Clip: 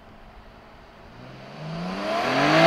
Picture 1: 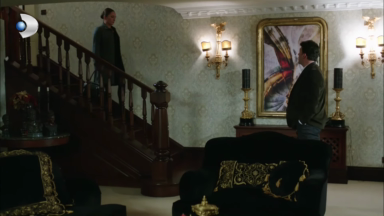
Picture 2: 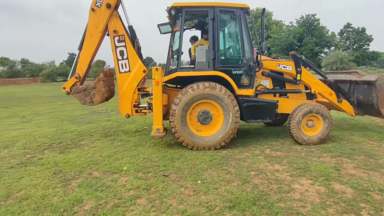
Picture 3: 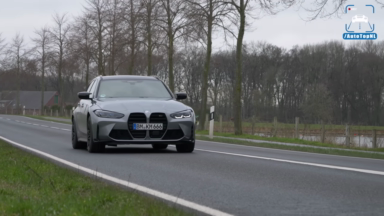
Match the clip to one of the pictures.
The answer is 3